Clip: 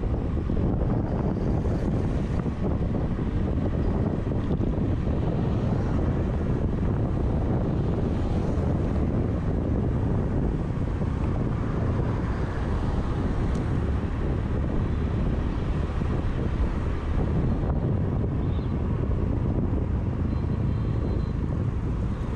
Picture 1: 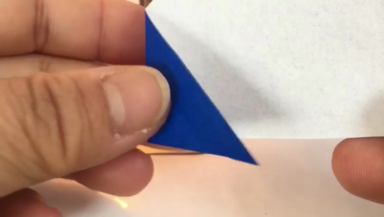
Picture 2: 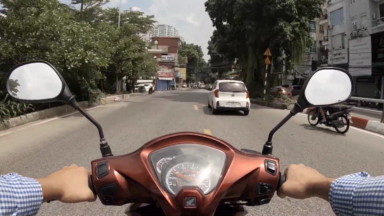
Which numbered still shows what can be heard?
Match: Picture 2